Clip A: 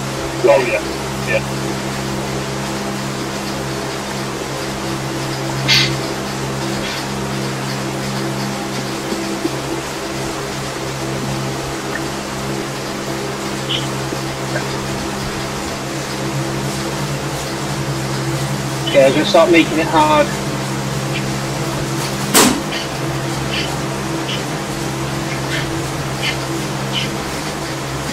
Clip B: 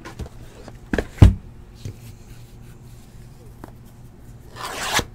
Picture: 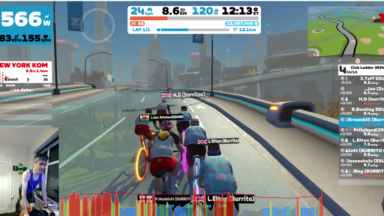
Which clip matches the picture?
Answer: A